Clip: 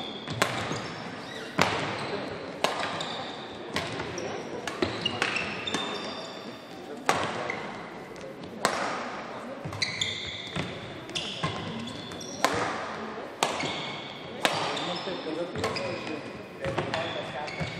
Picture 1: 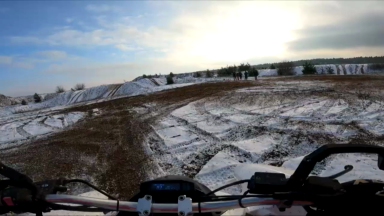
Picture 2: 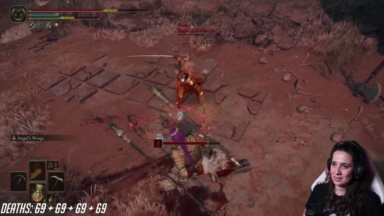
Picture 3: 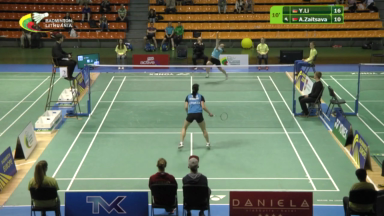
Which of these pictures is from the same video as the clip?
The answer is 3